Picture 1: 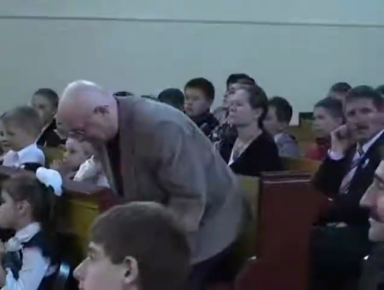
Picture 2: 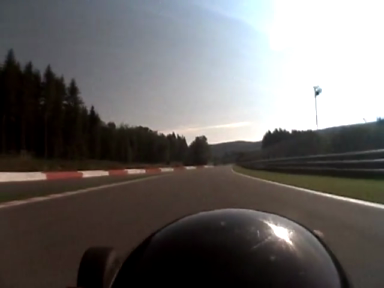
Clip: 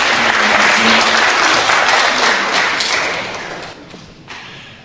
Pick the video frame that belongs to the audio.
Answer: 1